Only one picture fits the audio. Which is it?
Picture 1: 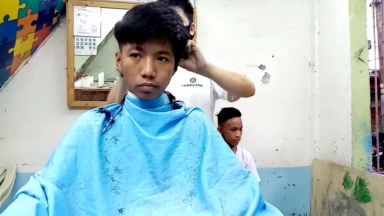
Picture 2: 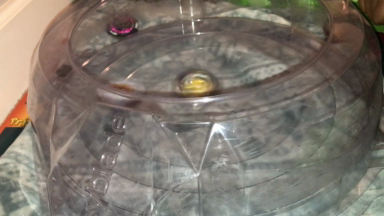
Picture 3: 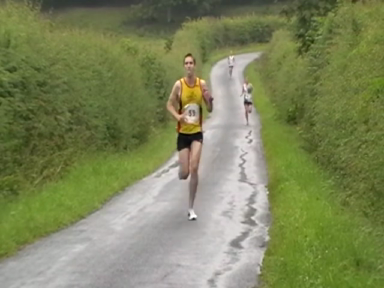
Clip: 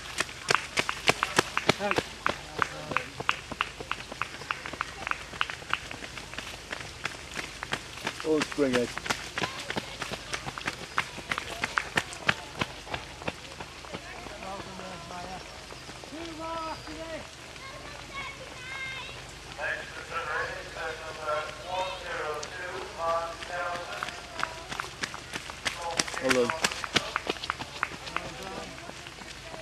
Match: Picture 3